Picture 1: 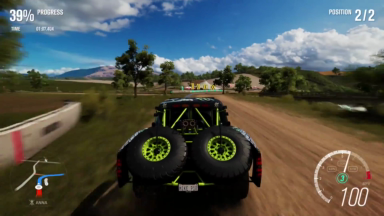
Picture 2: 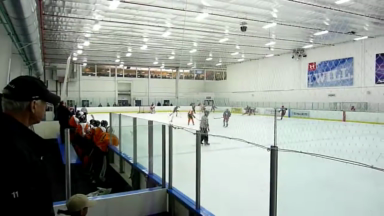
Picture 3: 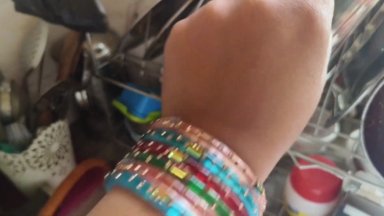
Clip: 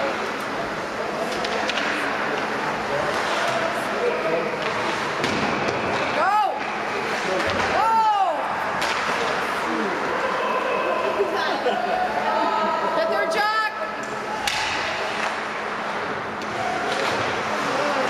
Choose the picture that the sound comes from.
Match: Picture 2